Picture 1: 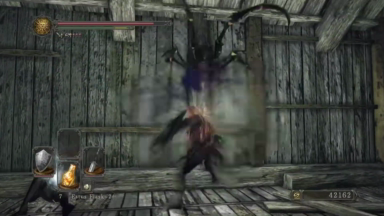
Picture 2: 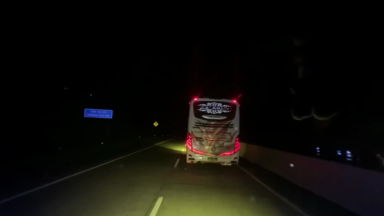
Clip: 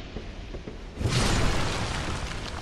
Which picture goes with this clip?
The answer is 1